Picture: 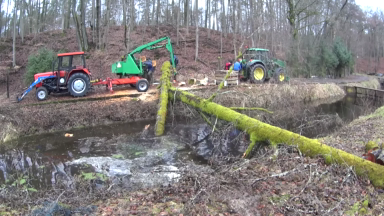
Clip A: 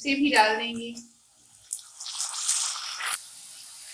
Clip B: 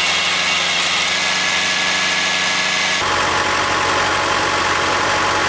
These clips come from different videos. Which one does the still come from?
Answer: B